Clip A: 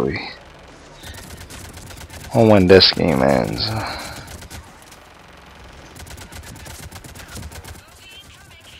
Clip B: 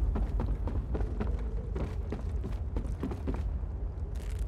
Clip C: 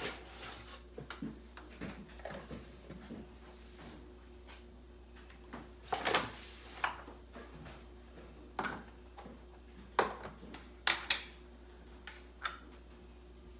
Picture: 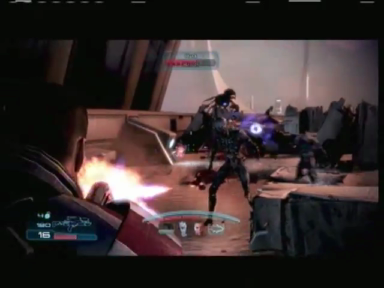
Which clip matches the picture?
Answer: A